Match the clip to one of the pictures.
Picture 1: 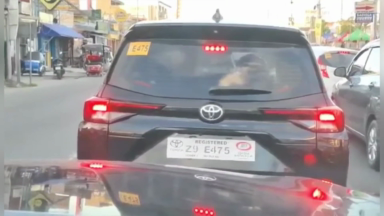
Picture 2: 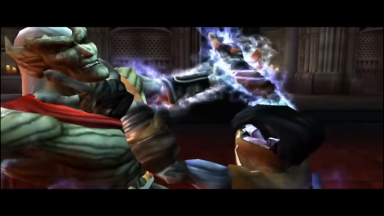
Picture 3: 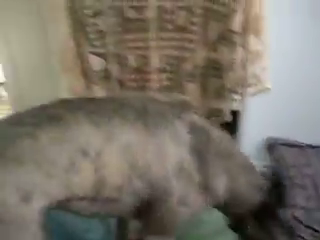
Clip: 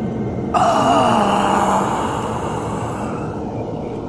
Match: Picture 2